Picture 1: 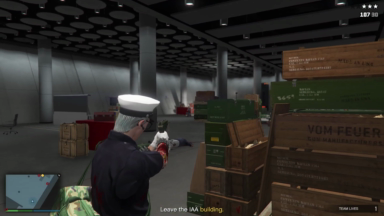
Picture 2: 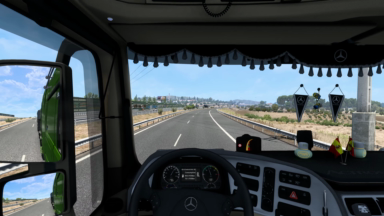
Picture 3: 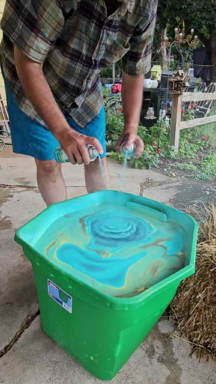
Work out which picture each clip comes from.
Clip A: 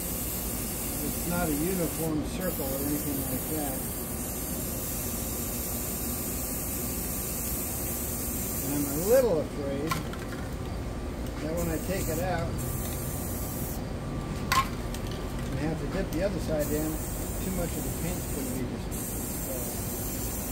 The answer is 3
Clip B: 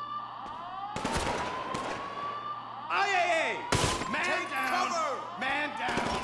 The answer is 1